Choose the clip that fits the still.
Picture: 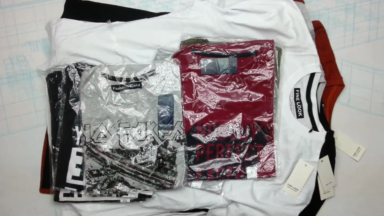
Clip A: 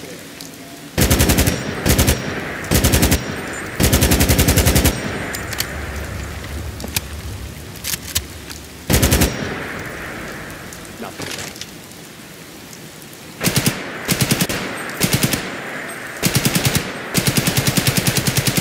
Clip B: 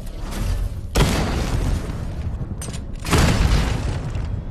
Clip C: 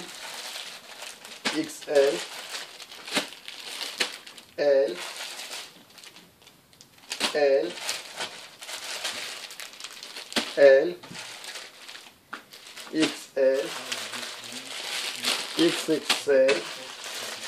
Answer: C